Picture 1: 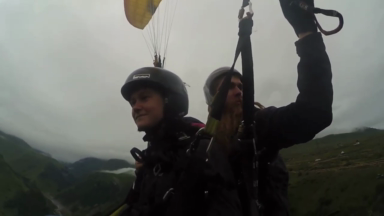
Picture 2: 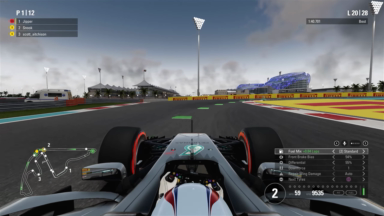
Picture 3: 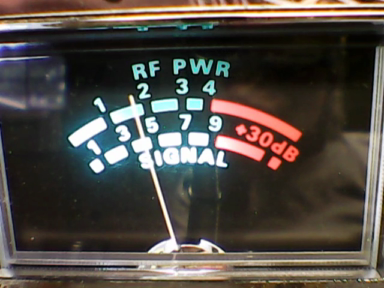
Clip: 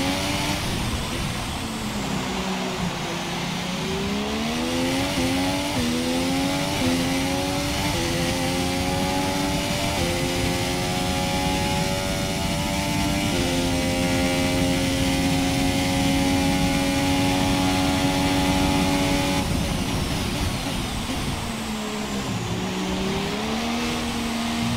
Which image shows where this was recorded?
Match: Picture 2